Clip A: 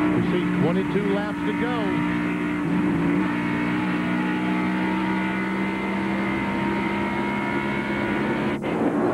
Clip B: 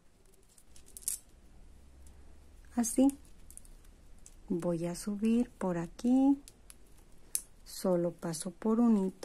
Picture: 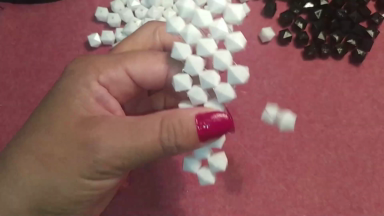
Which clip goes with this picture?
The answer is B